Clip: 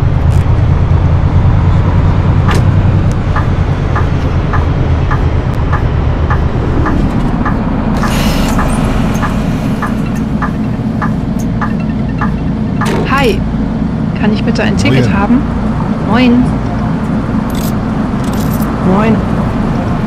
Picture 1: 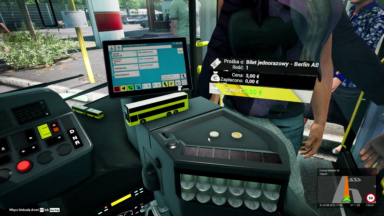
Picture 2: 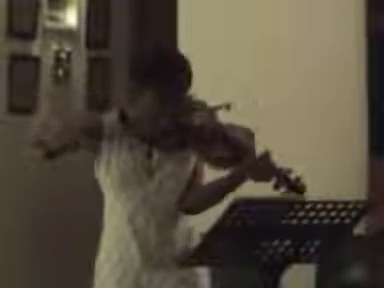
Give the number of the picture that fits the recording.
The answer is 1